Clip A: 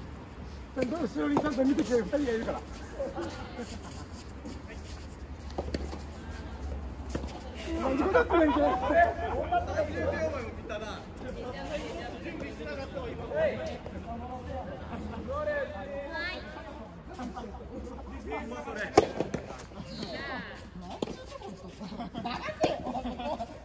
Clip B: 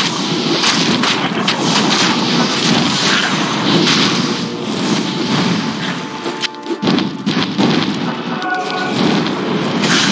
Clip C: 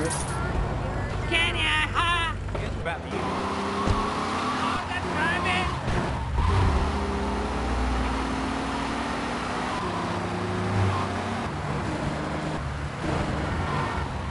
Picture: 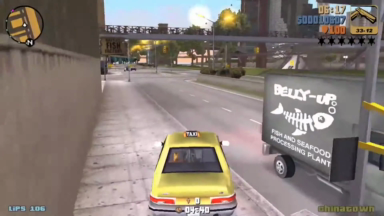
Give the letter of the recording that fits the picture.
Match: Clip C